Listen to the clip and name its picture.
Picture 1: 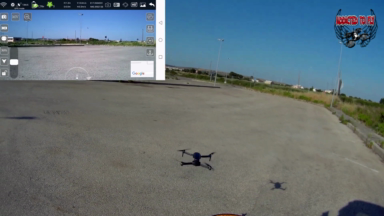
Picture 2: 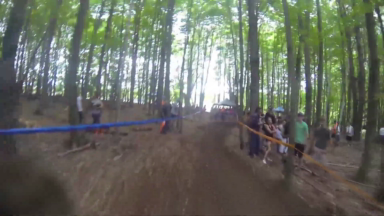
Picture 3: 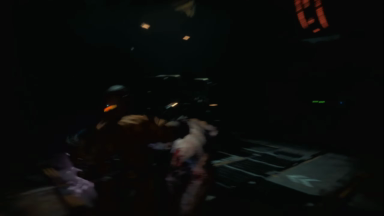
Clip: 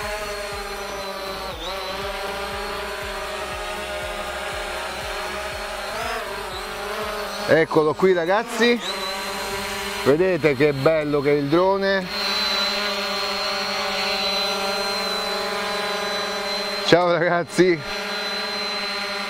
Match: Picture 1